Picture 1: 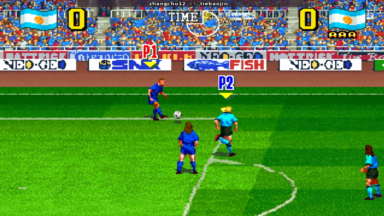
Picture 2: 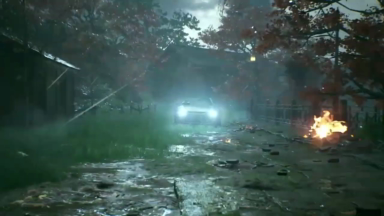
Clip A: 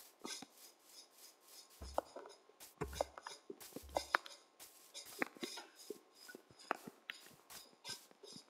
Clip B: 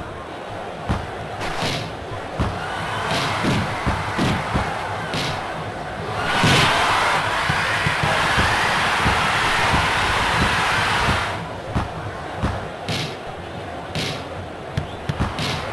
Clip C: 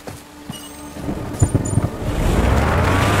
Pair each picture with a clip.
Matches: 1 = B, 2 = C